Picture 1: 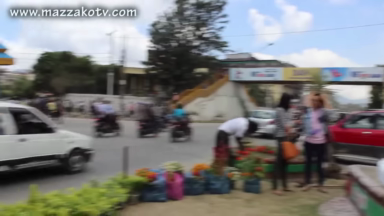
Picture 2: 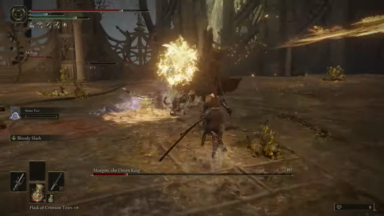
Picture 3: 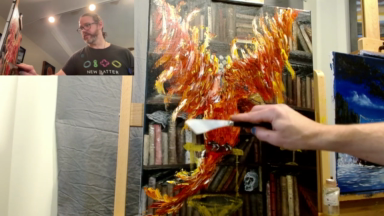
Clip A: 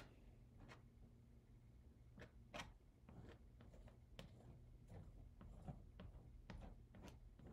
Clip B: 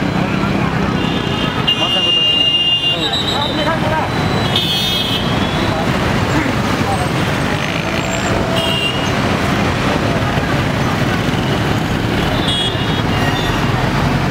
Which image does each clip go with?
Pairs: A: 3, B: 1